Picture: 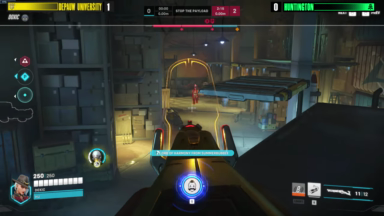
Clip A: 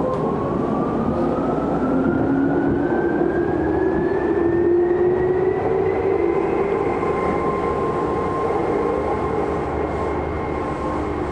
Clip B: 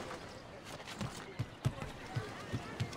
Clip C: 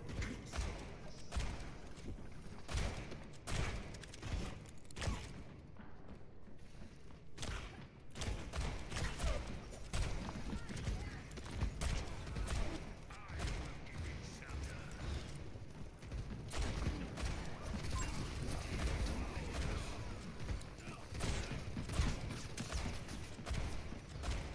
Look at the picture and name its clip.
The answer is C